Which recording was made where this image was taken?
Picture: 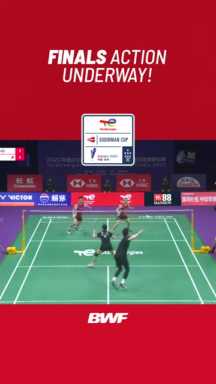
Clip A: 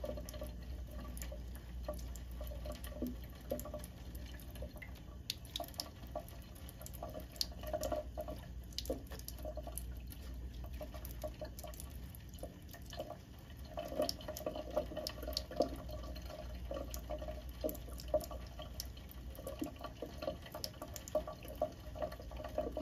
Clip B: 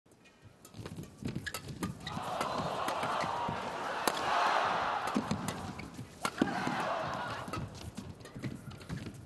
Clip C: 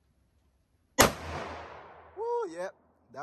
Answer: B